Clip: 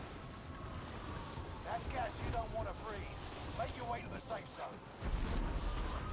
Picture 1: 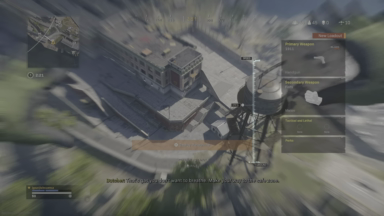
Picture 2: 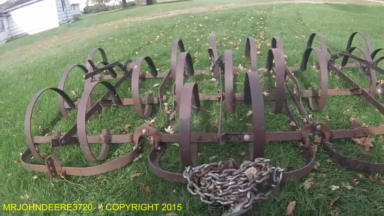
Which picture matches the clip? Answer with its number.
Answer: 1